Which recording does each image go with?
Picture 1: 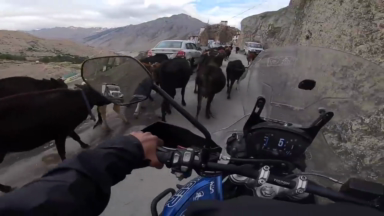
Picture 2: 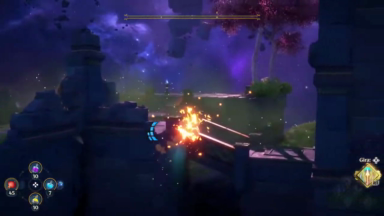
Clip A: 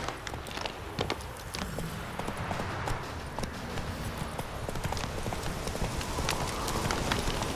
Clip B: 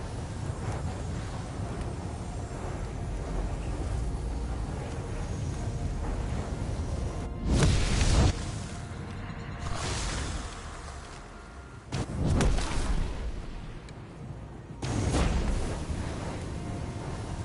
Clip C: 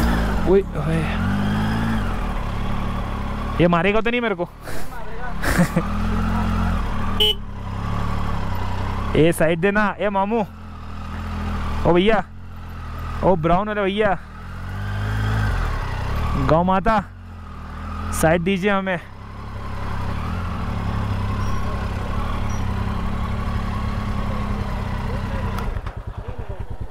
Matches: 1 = C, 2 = B